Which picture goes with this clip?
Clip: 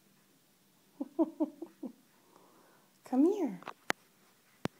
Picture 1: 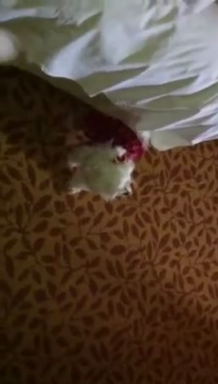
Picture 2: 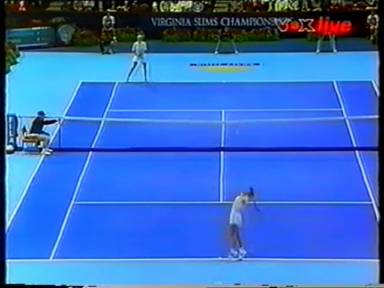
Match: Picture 1